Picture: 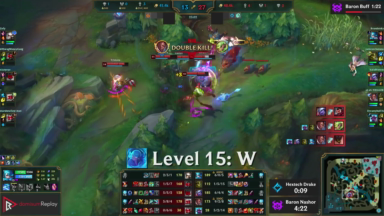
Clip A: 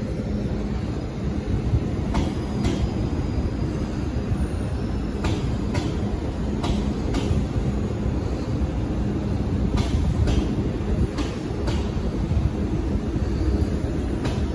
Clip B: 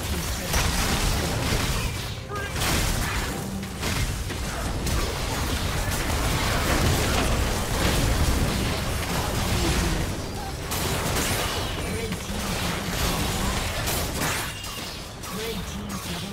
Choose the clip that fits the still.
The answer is B